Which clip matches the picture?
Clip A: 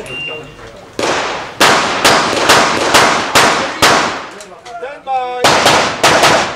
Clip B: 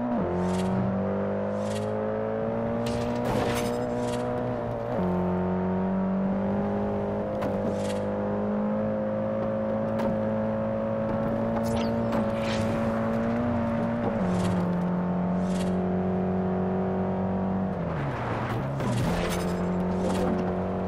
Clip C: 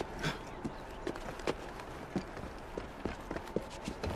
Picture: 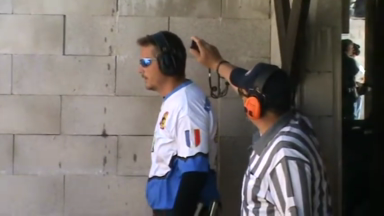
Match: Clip A